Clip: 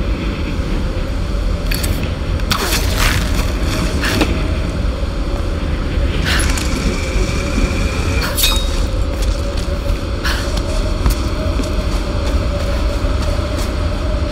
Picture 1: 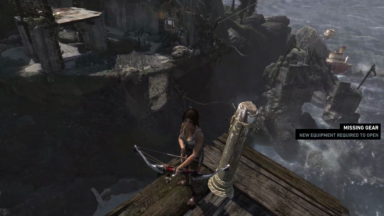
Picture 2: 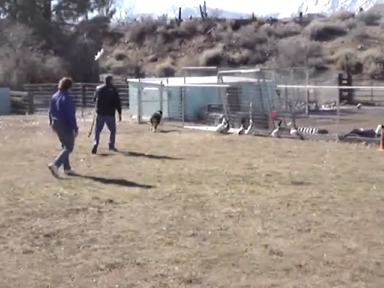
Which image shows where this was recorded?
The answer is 1